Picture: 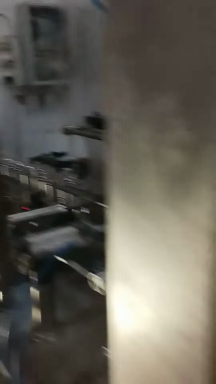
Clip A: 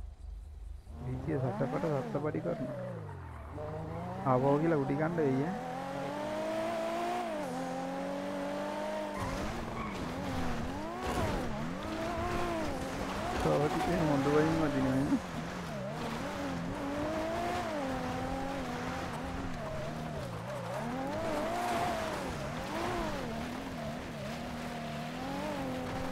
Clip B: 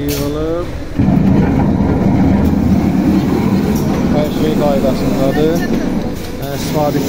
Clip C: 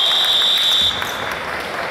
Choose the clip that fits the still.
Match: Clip B